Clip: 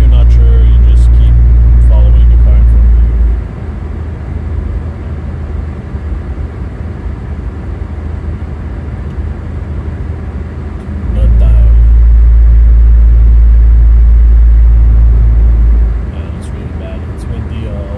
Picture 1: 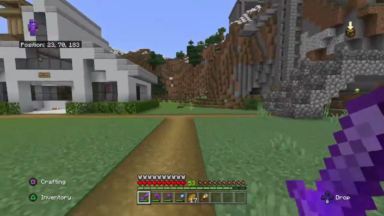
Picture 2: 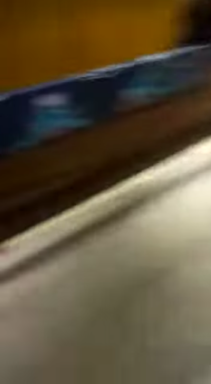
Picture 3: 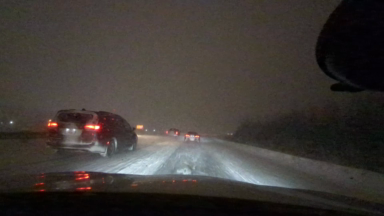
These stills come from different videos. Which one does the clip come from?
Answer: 3